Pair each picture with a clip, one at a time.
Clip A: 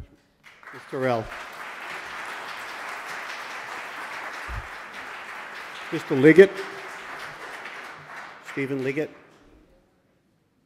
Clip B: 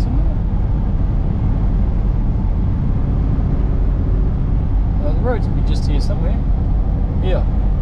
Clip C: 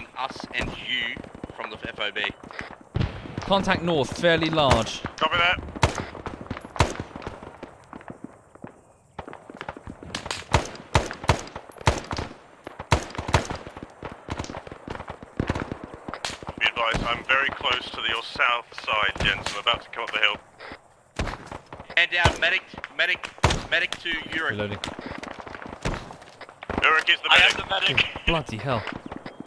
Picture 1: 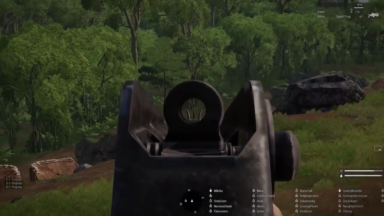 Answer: C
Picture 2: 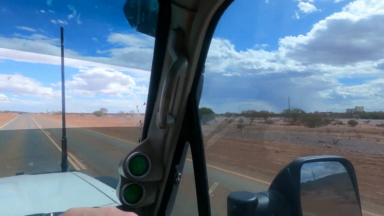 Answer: B